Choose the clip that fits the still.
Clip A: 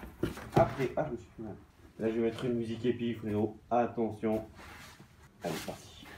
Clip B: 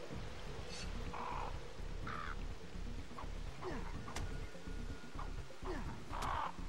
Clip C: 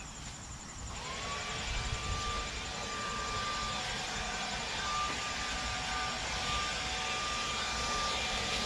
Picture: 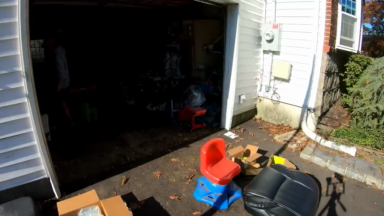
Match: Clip C